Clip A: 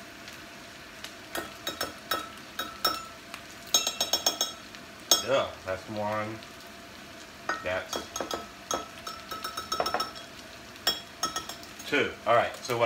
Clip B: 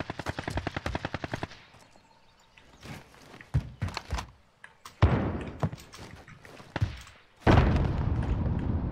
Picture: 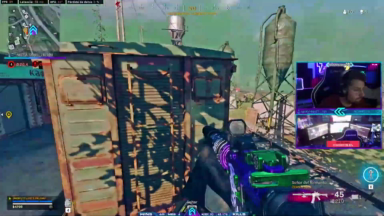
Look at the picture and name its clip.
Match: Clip B